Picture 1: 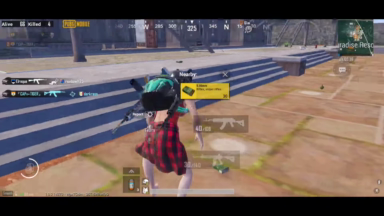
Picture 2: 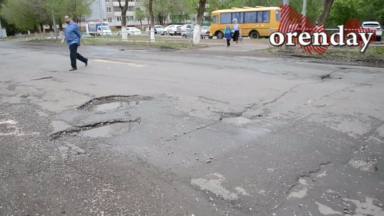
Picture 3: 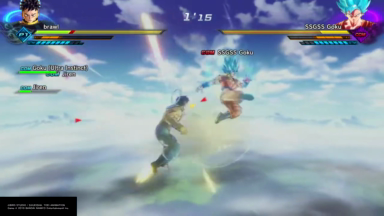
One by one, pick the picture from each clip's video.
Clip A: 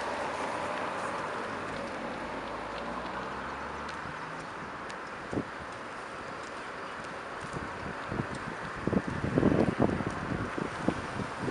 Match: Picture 2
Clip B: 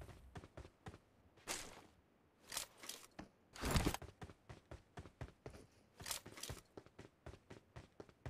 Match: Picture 1